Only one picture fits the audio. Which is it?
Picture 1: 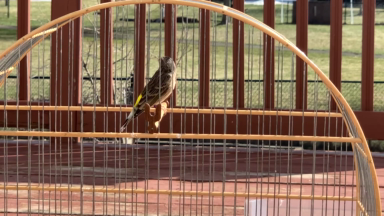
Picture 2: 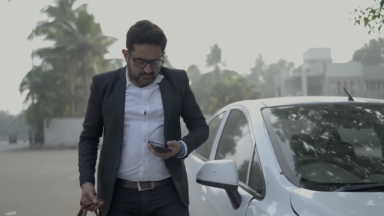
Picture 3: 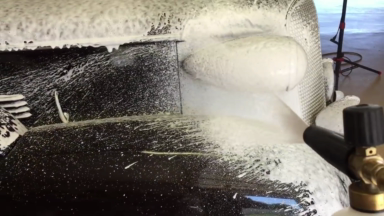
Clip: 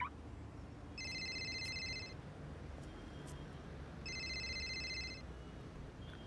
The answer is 2